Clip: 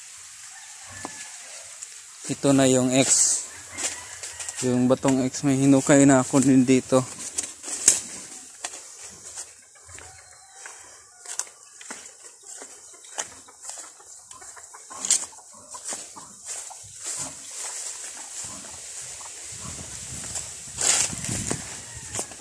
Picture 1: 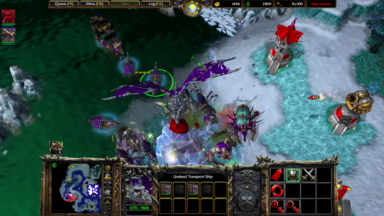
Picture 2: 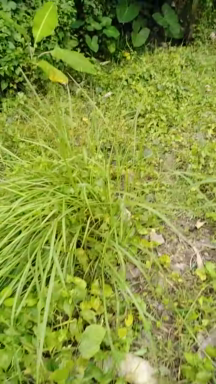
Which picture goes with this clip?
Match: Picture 2